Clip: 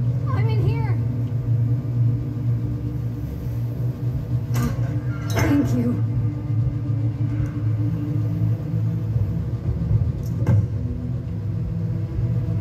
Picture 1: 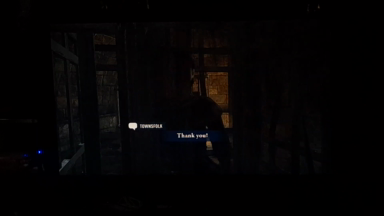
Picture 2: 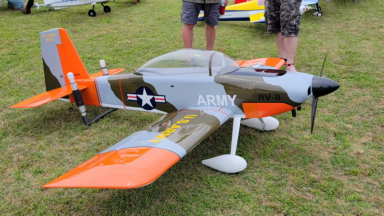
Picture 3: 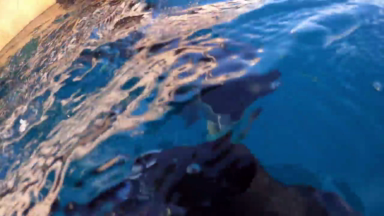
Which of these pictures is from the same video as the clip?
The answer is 1